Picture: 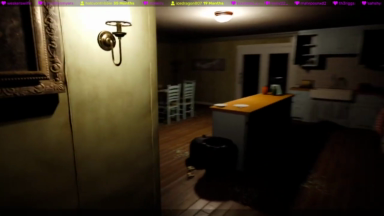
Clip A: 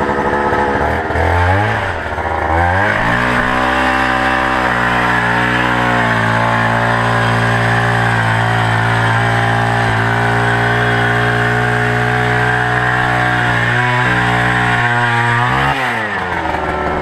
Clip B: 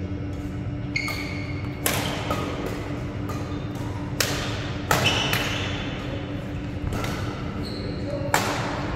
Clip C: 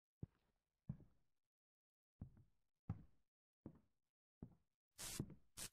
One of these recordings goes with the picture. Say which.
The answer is C